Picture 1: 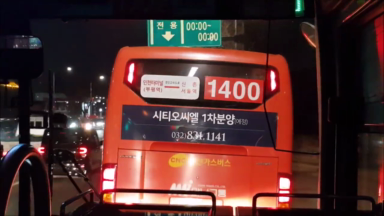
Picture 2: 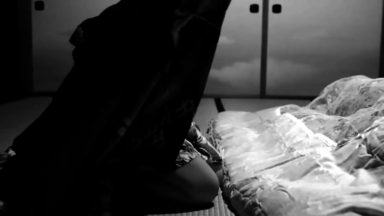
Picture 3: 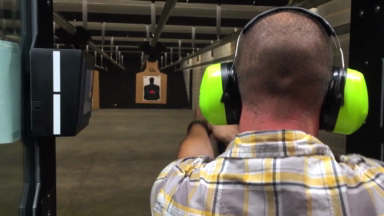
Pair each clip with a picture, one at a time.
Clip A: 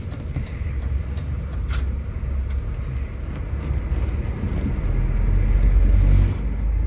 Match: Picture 1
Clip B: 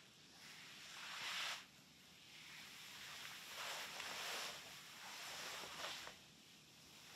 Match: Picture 2